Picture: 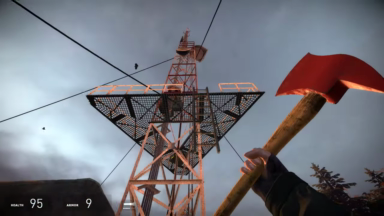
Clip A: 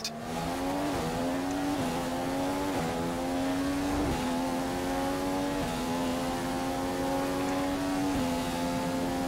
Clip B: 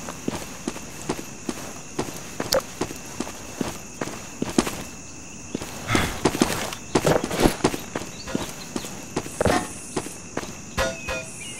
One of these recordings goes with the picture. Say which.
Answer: B